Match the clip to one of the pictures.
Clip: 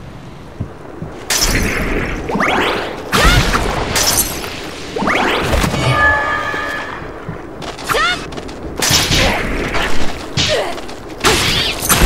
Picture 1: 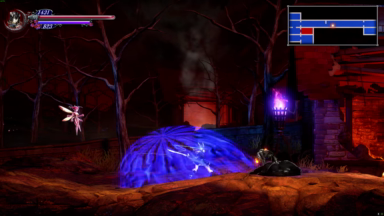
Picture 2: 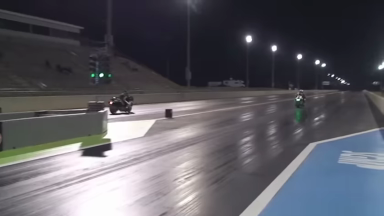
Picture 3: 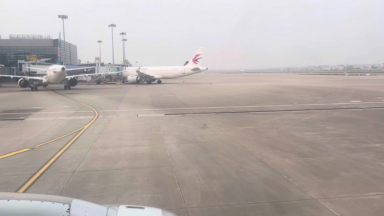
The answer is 1